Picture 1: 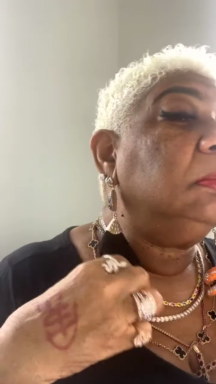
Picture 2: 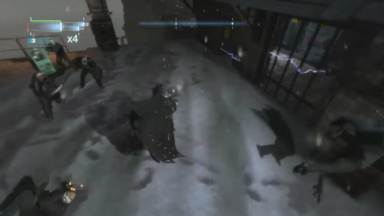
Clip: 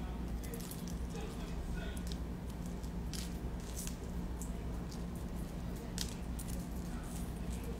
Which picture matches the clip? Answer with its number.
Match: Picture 1